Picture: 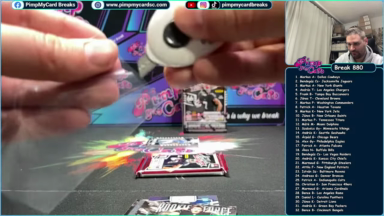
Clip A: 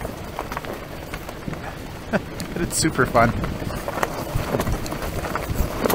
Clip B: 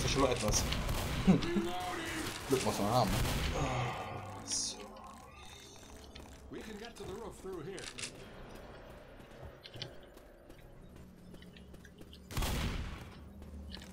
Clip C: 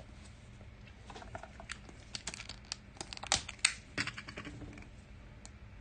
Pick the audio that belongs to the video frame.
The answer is C